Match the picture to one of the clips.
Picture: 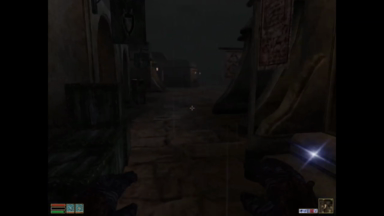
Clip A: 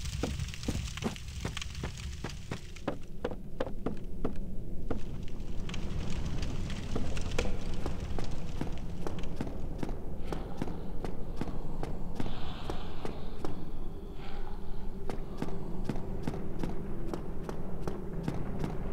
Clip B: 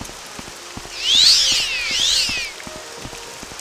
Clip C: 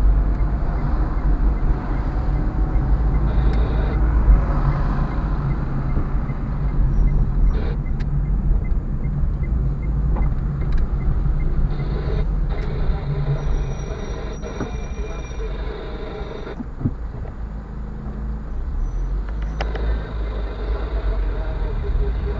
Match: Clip B